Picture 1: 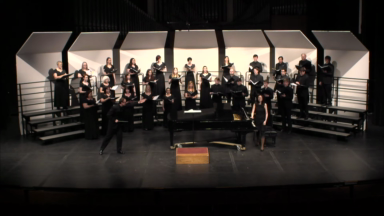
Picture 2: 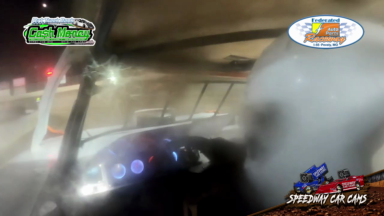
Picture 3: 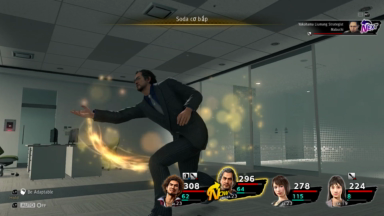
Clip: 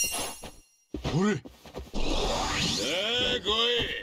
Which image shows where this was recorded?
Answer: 3